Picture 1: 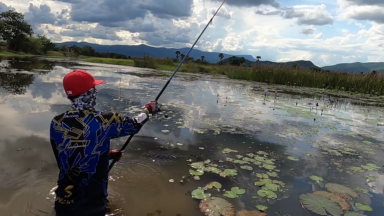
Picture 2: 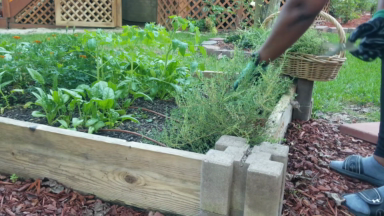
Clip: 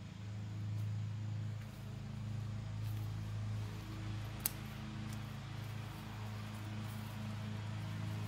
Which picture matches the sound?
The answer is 2